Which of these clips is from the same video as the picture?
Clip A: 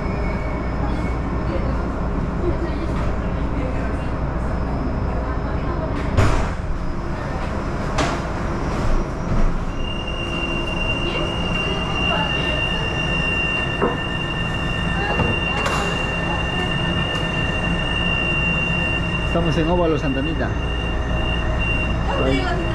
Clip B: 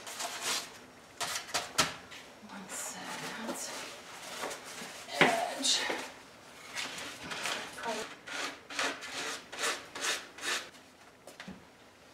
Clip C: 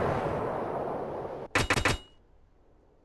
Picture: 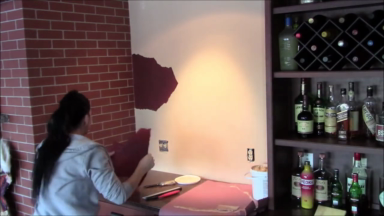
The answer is B